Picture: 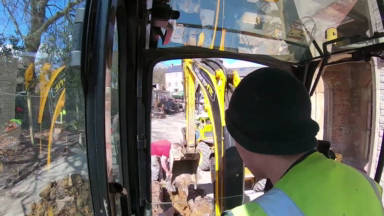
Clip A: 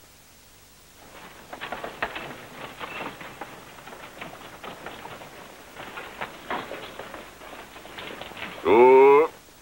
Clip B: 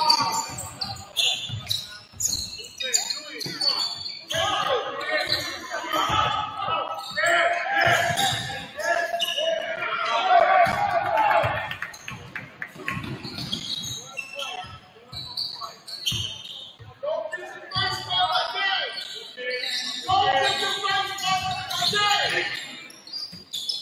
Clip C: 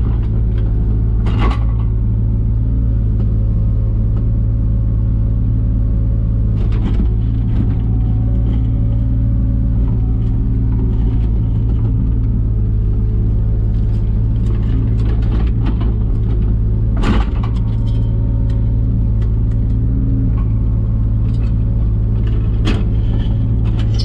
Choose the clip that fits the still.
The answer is C